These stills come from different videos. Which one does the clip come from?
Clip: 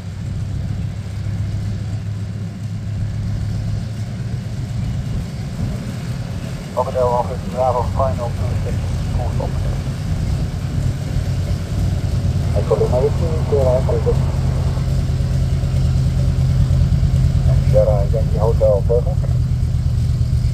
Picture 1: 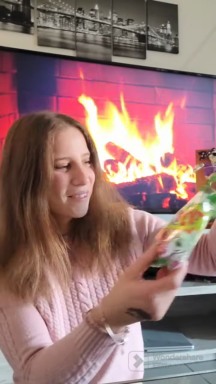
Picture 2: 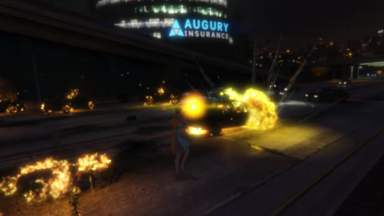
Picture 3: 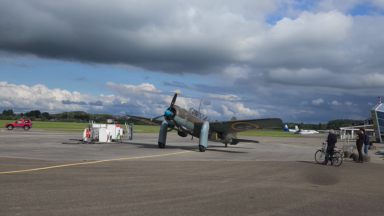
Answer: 3